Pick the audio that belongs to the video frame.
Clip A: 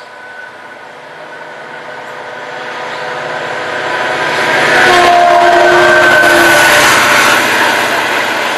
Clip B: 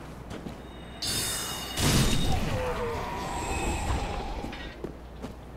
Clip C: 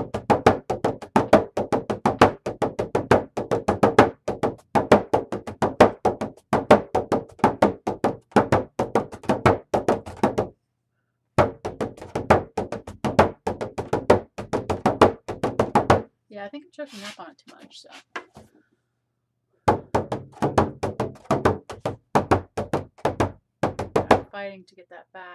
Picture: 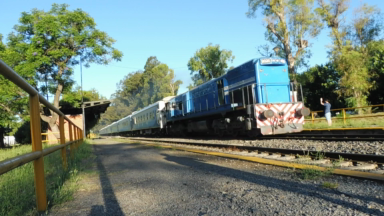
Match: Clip A